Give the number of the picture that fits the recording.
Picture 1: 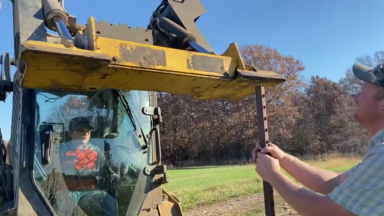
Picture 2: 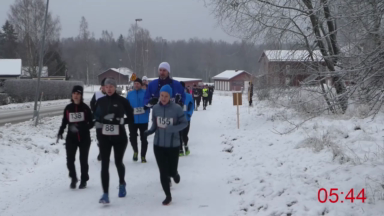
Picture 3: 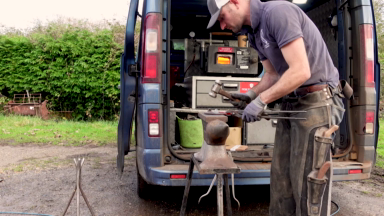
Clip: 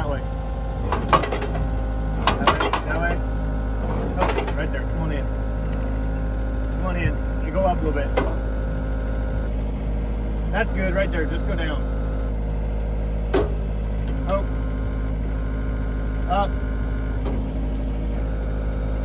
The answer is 1